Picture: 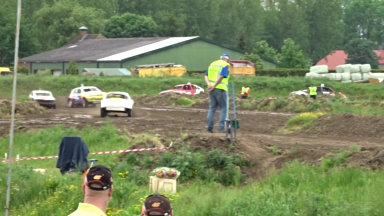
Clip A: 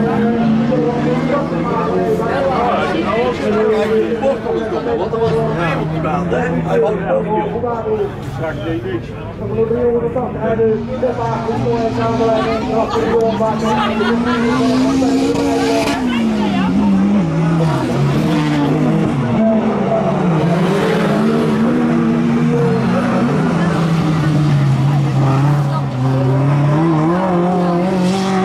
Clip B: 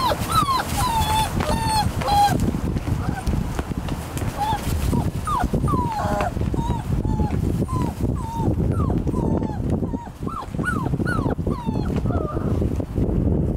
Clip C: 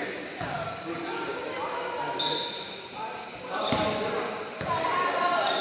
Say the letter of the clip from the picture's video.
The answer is A